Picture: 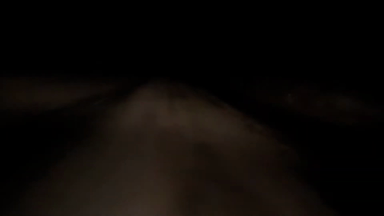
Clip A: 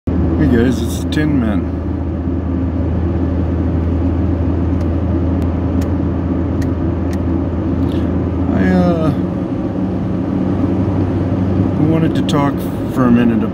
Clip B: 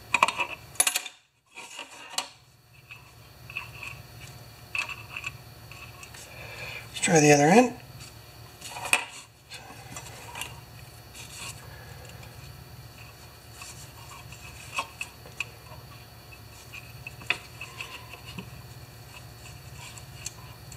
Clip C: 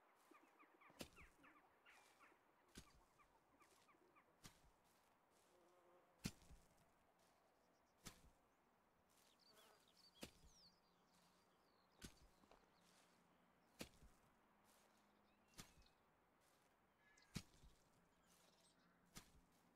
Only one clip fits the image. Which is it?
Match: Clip A